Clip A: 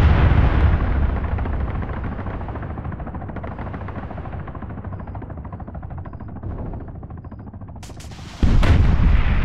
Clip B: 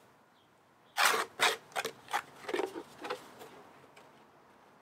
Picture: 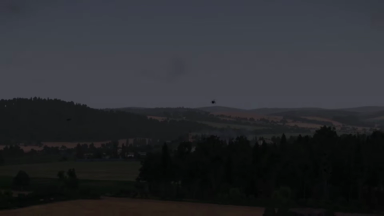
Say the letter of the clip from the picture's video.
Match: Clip A